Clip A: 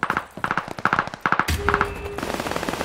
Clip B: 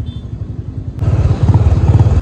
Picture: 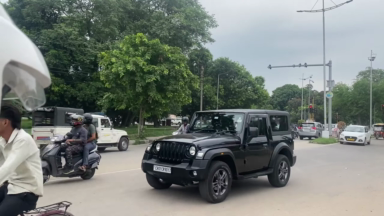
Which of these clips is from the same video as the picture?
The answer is B